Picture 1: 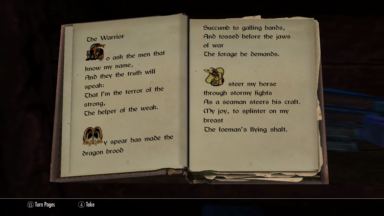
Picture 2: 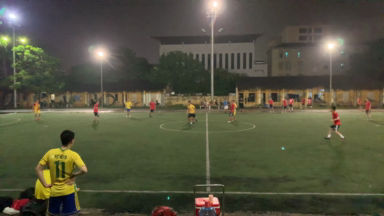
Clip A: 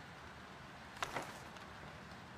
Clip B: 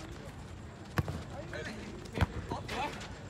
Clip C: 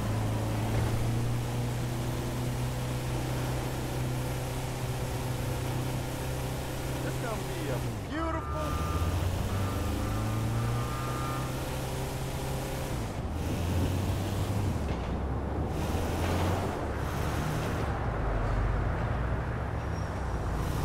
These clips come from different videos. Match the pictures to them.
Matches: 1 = A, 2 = B